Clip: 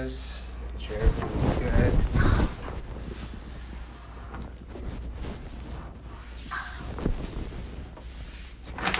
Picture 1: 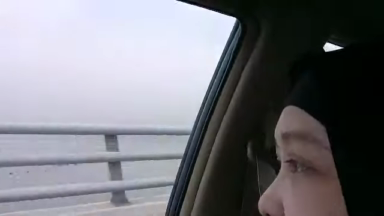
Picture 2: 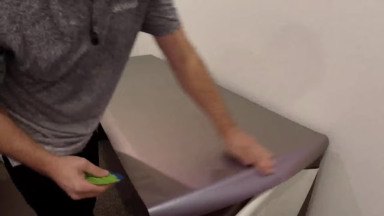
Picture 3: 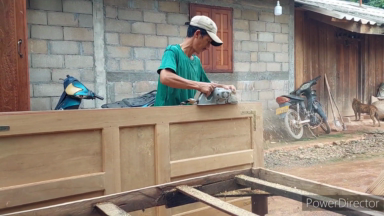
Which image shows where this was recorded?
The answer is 2